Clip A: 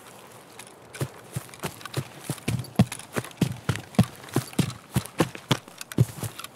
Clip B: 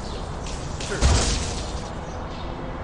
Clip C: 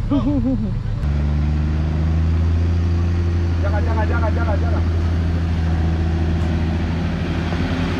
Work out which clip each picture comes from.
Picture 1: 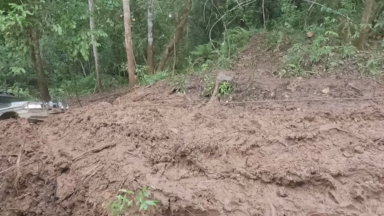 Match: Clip C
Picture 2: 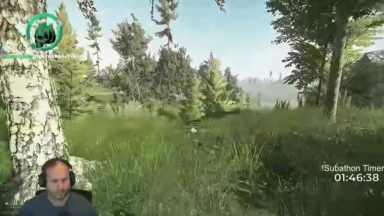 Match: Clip A